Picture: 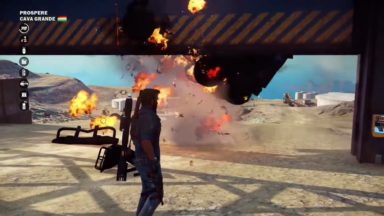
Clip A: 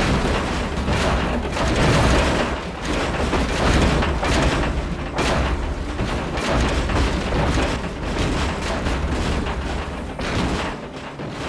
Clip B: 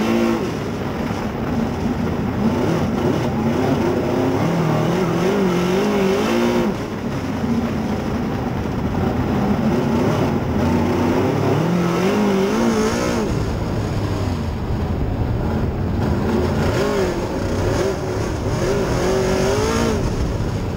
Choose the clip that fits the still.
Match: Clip A